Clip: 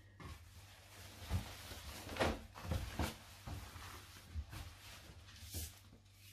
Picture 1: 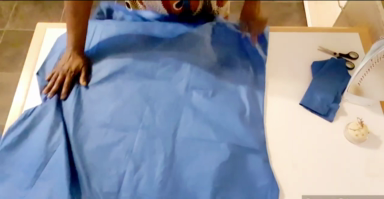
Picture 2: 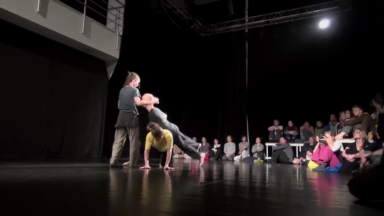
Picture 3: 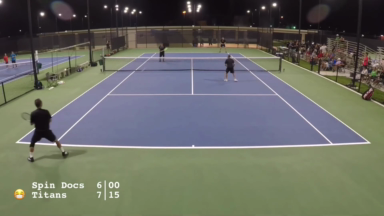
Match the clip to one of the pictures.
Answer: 1